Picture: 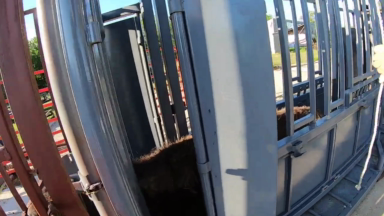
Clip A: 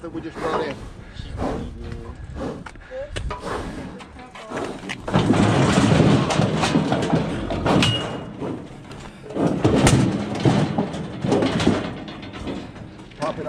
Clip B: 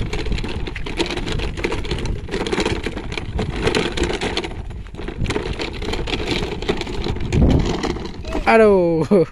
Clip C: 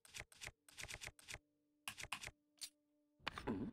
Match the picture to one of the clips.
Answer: A